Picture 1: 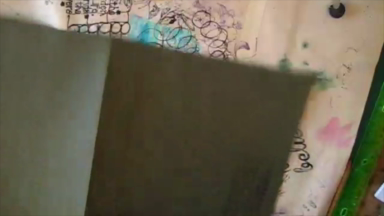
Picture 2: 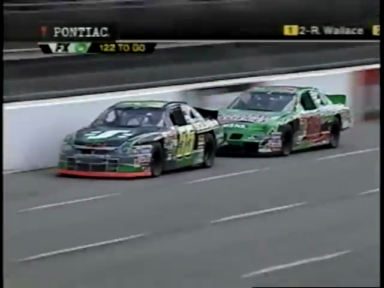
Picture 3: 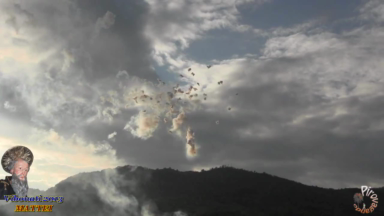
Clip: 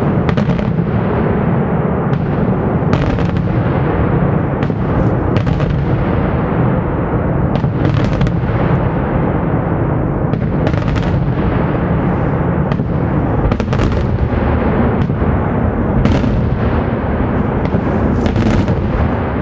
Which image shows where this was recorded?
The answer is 3